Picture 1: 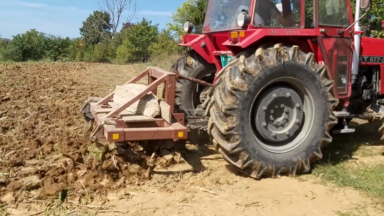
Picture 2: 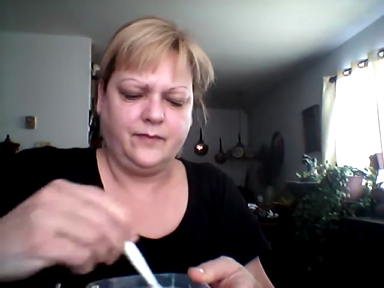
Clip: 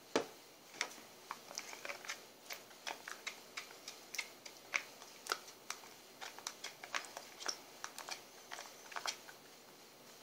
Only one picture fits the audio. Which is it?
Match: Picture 2